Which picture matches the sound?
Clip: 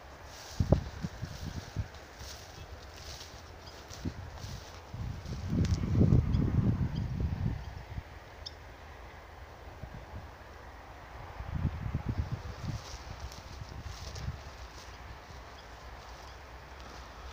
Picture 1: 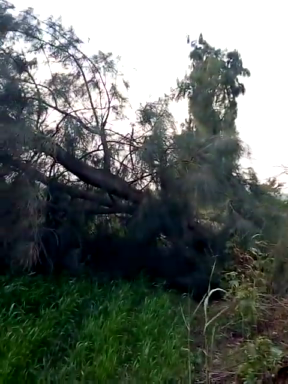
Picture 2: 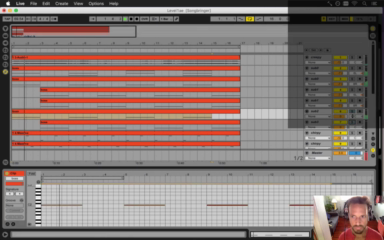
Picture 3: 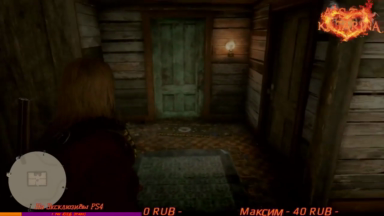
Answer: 1